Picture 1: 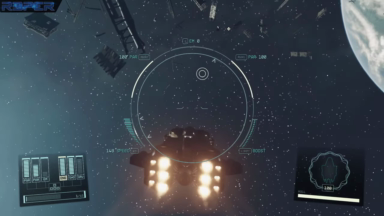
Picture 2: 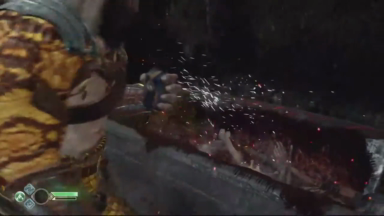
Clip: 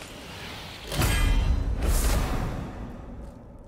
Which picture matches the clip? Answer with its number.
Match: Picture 2